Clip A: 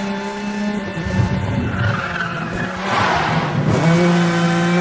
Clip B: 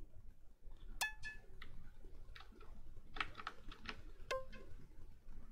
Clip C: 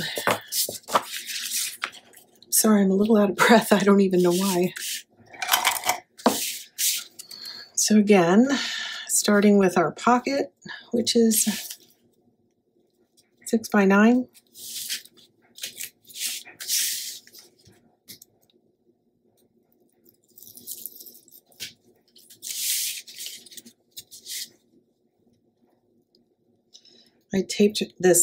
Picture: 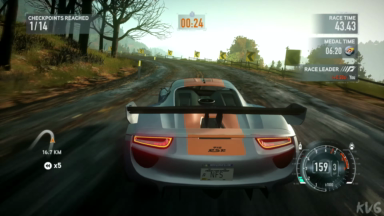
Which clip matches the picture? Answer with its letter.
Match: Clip A